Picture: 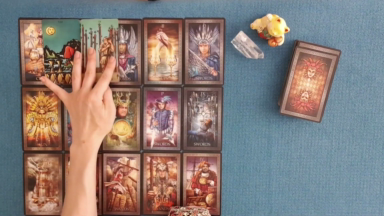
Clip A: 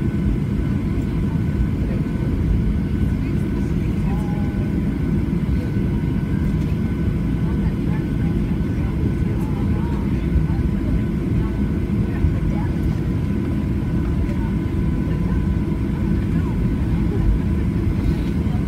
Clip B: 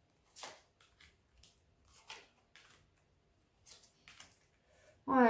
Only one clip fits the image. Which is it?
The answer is B